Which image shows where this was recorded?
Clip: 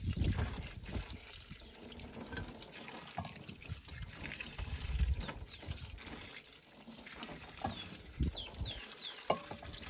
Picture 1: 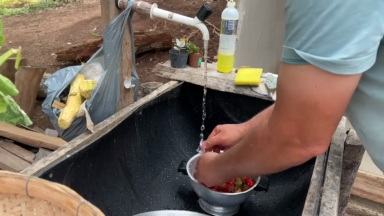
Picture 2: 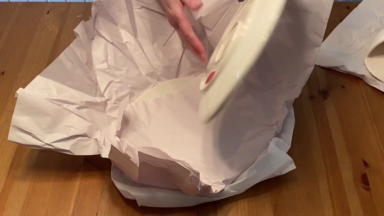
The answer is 1